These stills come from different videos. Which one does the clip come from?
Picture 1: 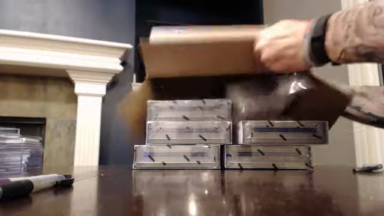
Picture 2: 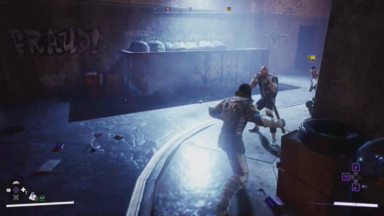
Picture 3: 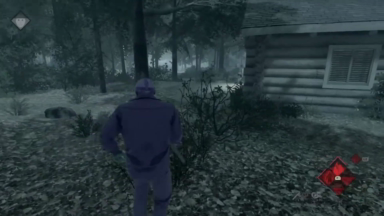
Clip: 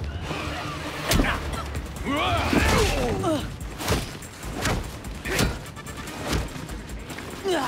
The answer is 2